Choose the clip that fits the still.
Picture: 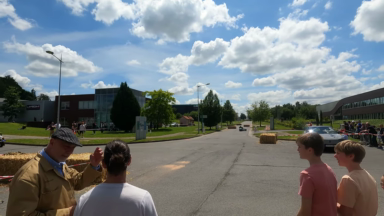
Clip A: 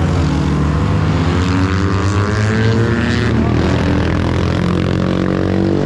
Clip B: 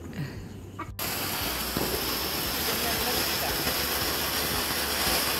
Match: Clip A